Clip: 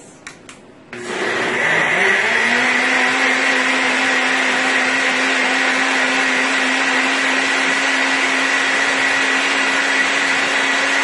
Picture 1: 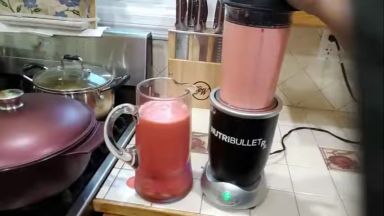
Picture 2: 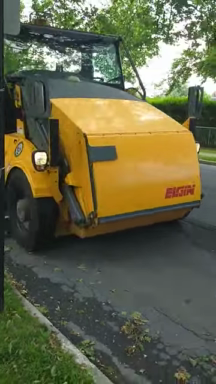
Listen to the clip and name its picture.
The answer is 1